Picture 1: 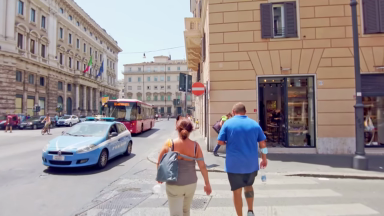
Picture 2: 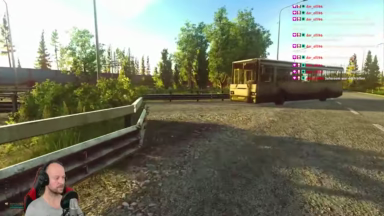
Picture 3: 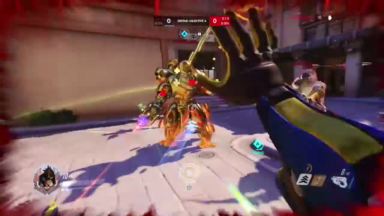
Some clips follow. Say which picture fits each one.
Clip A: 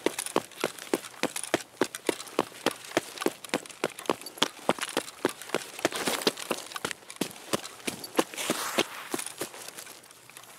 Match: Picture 2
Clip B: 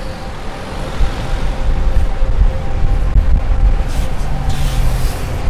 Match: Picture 1